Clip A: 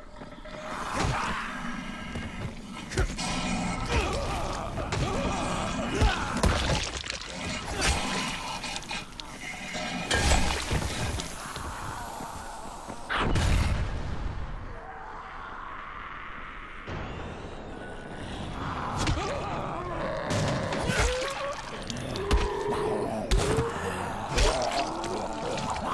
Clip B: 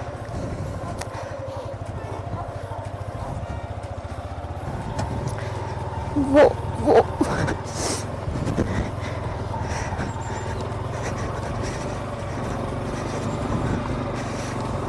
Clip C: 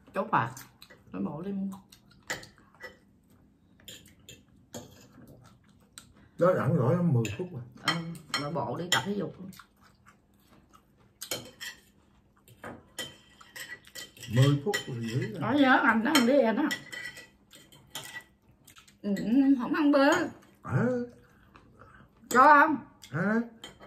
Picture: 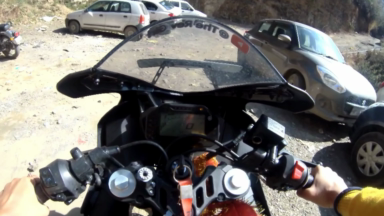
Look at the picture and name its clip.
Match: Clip B